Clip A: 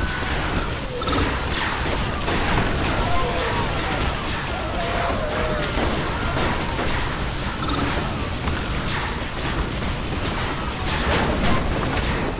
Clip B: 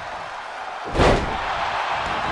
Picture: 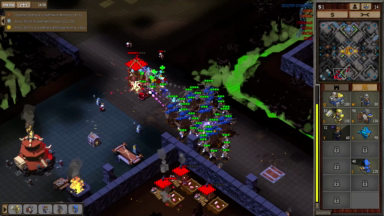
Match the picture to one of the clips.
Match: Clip A